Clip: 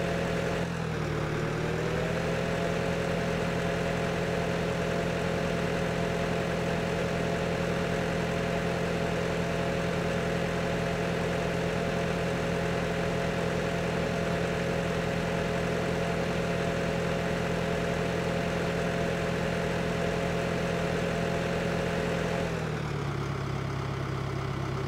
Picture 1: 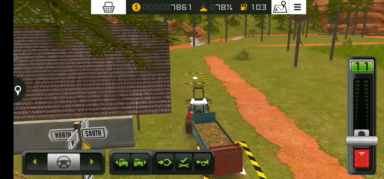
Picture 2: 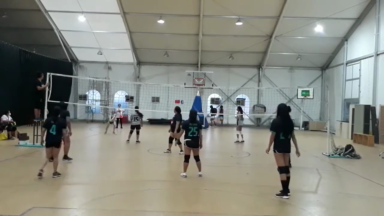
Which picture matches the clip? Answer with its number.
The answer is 1